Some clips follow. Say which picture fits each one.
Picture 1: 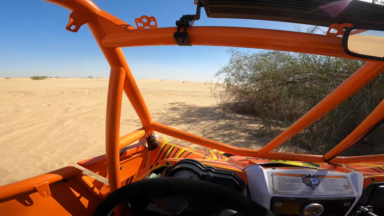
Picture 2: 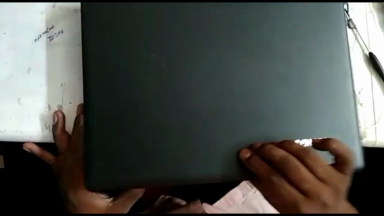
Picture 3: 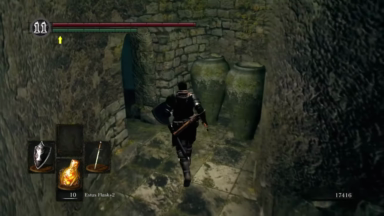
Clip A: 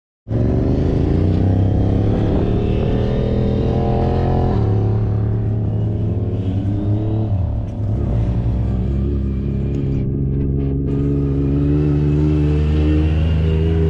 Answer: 1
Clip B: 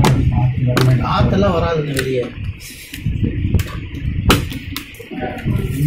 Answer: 2